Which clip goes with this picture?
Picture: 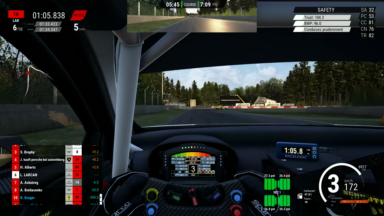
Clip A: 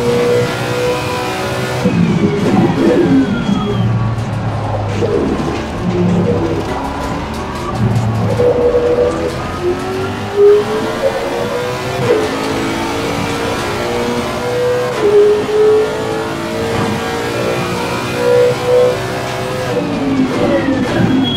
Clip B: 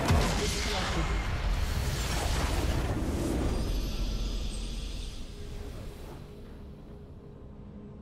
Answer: A